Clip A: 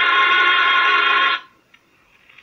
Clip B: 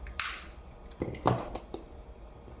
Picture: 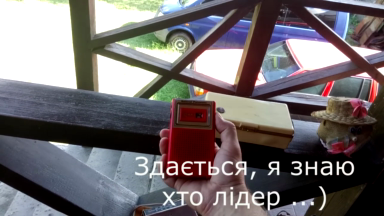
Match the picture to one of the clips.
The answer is A